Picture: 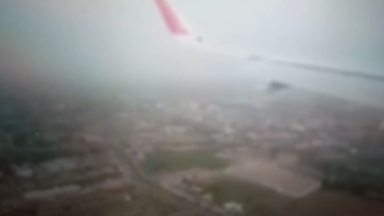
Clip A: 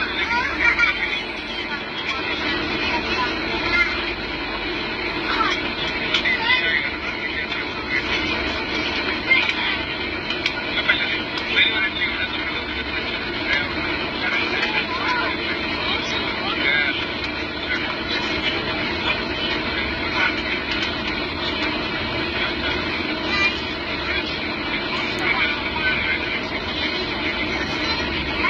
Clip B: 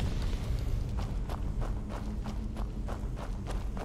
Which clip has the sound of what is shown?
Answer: A